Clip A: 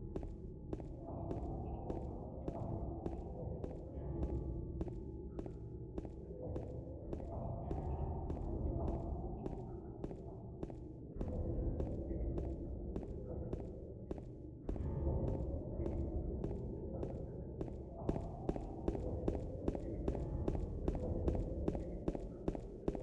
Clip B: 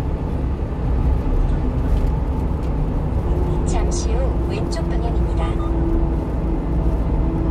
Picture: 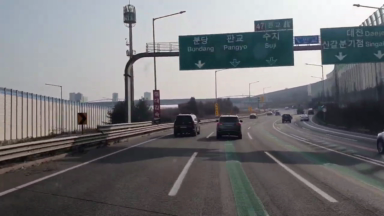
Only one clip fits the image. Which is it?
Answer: B